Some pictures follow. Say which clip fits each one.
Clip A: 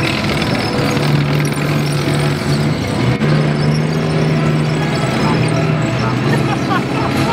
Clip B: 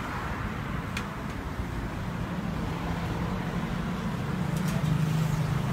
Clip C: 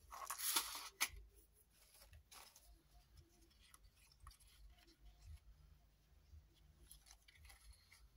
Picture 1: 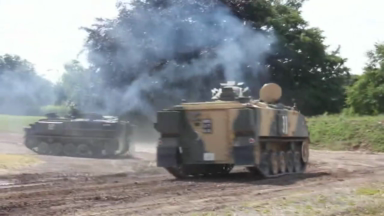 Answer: A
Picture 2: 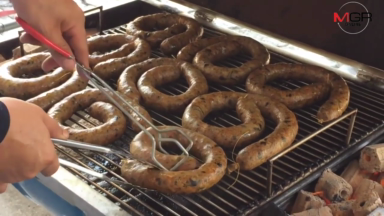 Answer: B